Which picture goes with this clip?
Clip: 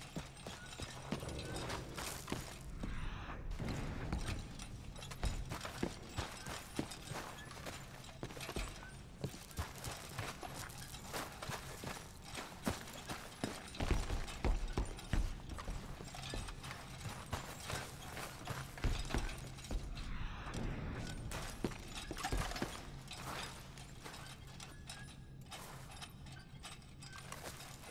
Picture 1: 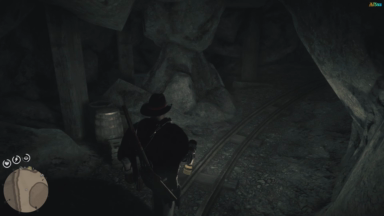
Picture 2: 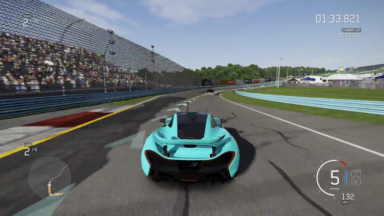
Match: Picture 1